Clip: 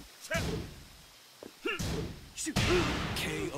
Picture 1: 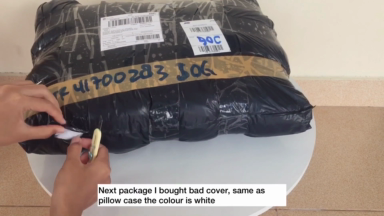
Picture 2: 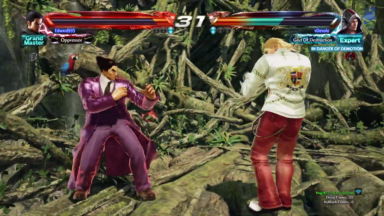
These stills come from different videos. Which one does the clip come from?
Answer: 2